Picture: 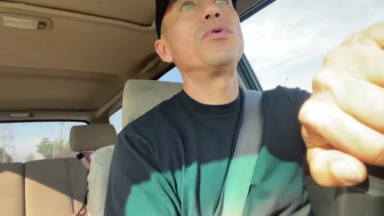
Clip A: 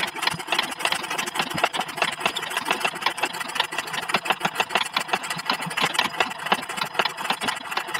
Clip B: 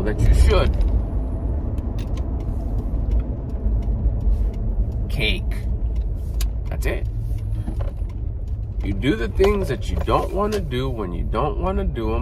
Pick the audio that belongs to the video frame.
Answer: B